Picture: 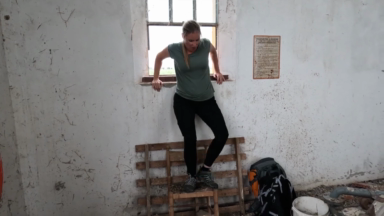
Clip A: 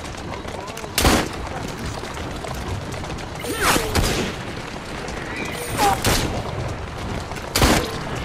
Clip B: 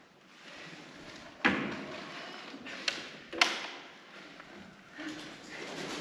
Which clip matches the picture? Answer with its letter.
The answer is B